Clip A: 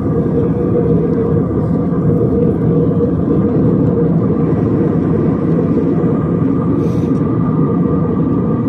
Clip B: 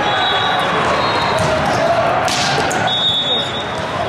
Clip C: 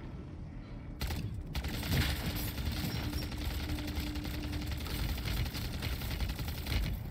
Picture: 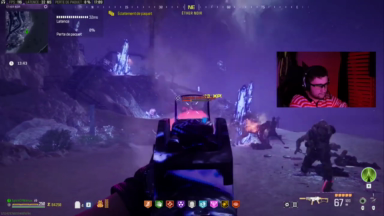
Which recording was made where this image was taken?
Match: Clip C